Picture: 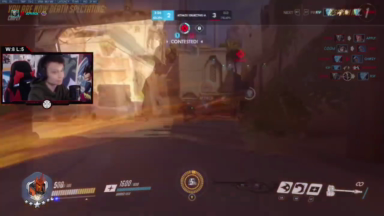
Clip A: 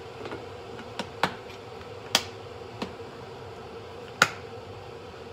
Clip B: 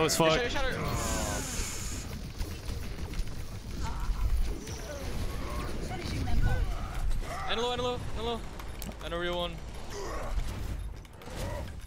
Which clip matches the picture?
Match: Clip B